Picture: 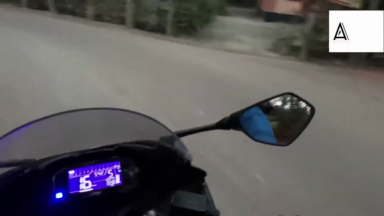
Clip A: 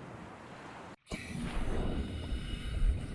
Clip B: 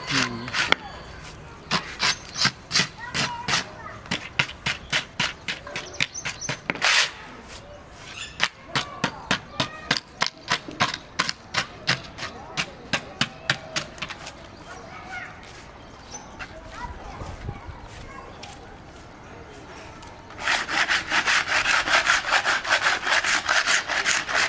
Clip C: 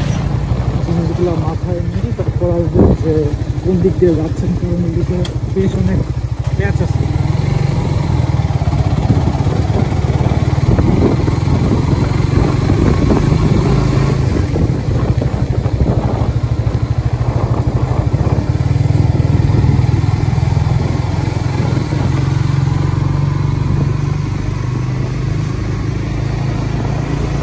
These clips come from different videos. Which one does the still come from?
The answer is C